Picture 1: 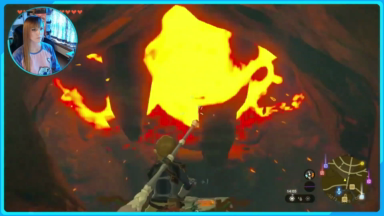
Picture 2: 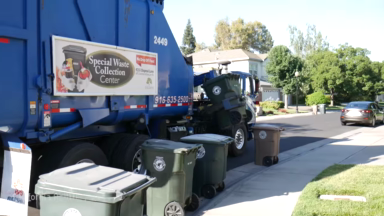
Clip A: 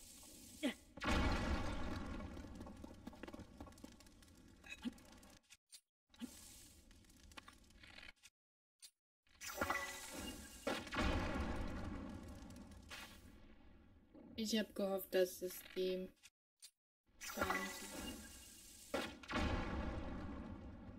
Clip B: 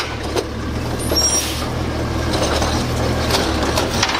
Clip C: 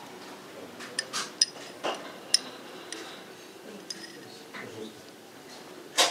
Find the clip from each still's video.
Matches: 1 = A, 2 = B